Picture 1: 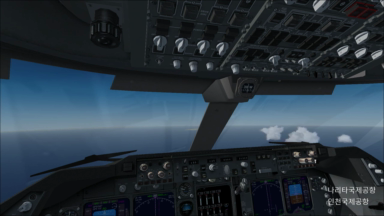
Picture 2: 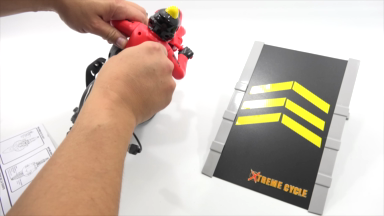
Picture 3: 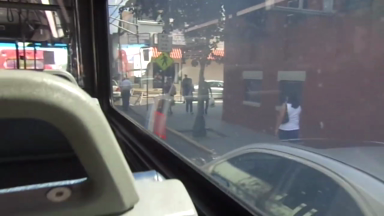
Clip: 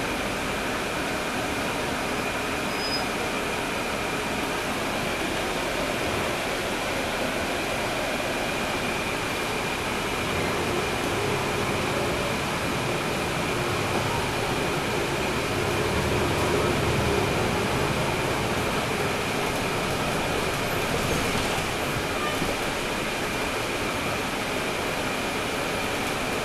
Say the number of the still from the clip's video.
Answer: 3